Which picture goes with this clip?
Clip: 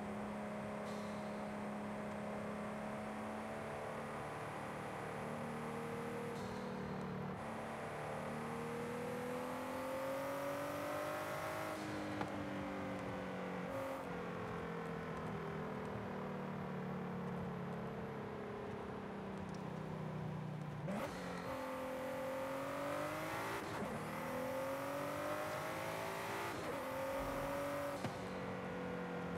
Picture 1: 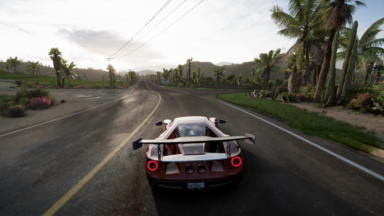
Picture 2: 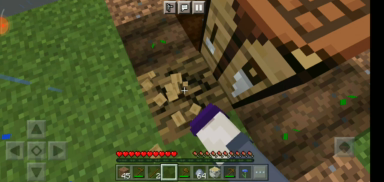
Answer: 1